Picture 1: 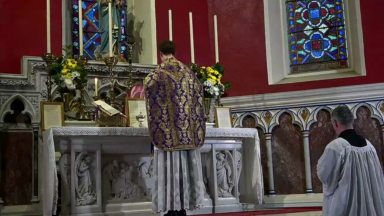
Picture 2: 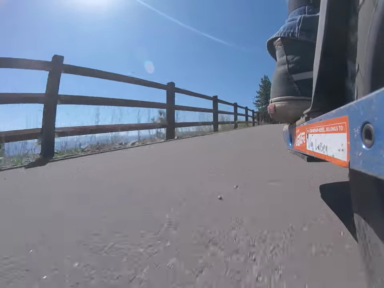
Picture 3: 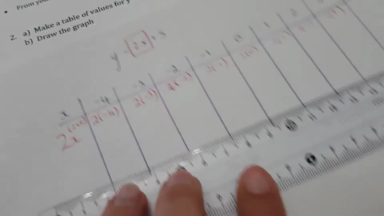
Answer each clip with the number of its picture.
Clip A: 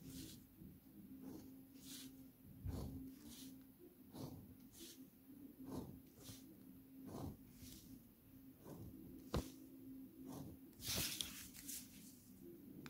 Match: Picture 3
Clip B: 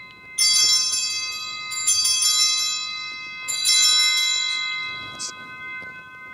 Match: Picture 1